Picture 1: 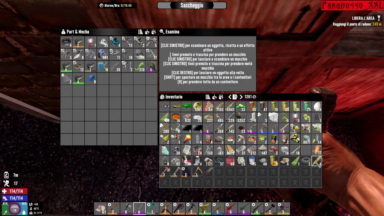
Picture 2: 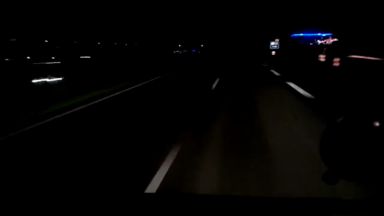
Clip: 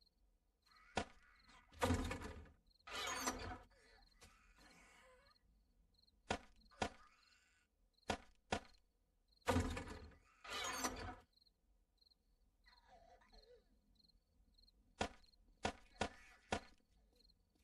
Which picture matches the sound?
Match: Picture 1